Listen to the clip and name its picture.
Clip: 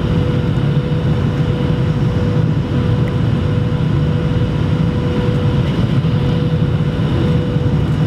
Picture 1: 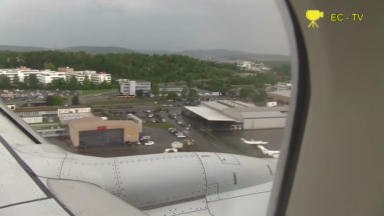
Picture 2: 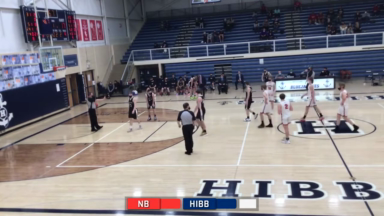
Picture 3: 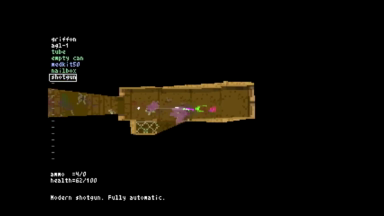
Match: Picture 1